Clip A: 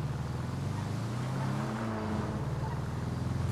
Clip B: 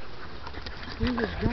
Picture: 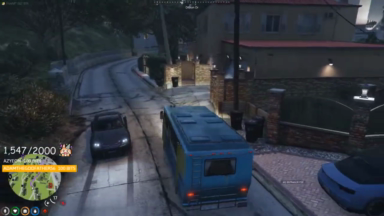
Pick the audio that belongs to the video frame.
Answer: A